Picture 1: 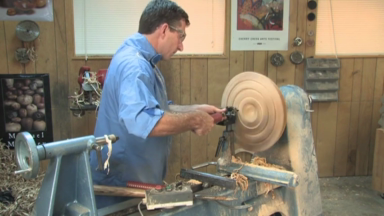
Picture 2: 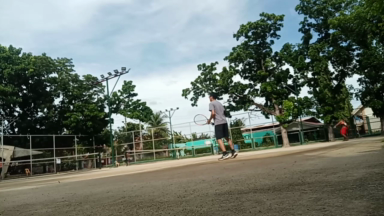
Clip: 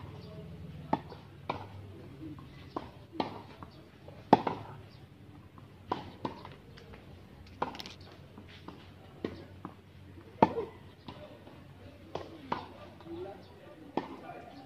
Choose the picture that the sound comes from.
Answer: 2